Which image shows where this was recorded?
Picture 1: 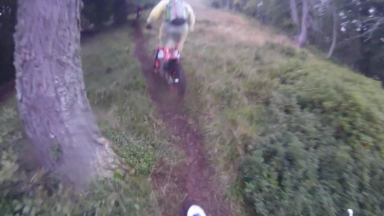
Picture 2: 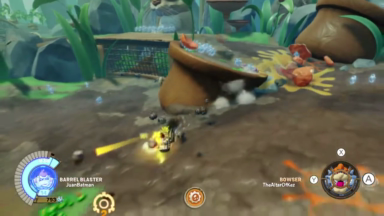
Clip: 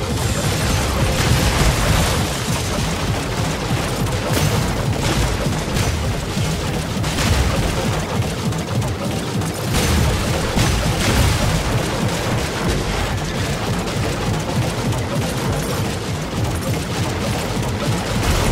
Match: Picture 2